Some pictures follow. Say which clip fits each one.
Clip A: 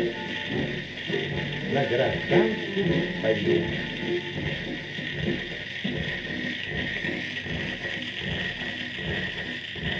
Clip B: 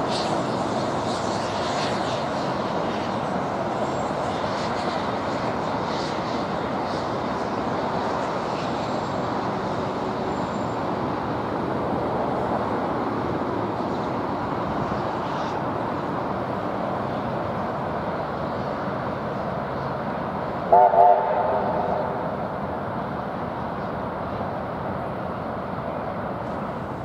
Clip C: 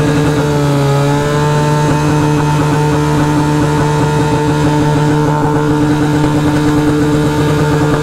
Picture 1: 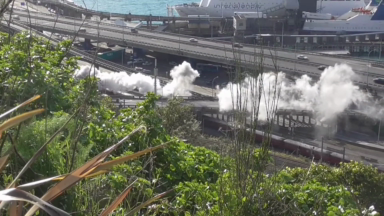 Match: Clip B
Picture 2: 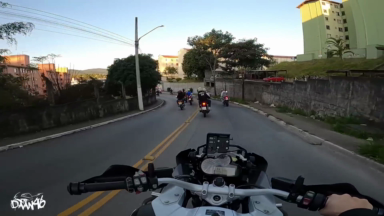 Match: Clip C